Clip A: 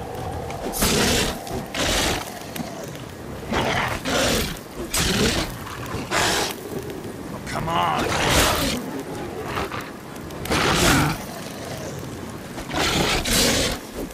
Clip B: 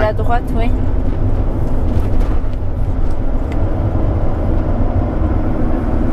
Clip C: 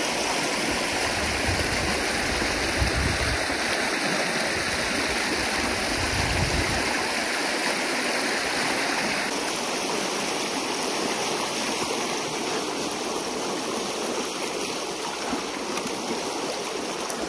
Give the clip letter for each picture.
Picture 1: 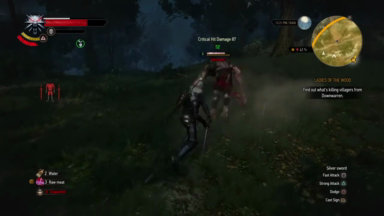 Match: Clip A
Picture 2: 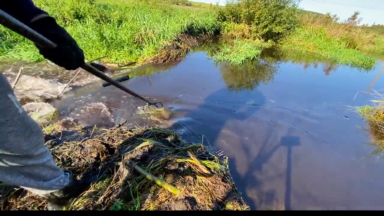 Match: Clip C